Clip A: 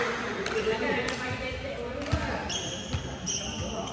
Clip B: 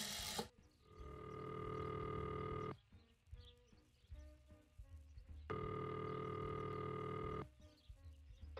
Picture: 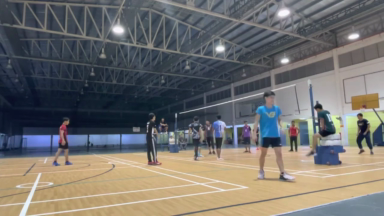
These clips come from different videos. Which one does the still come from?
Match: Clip A